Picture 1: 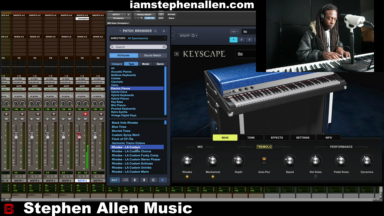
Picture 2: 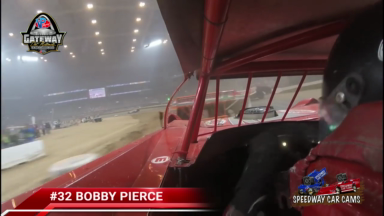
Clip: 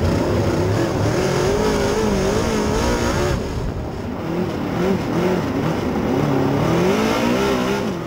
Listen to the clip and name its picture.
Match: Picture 2